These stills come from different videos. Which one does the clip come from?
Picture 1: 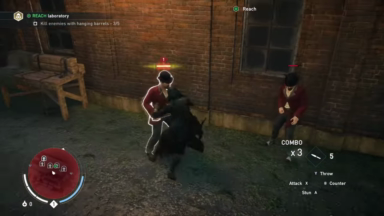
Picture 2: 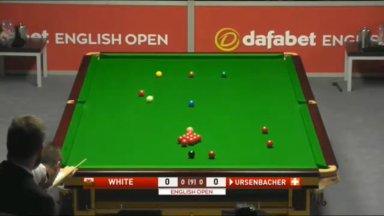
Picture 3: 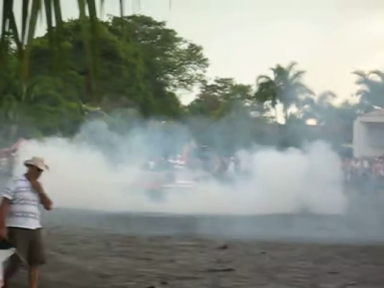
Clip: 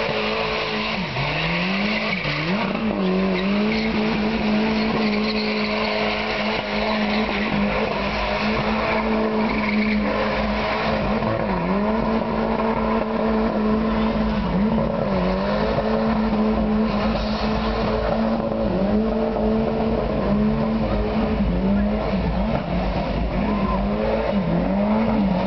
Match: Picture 3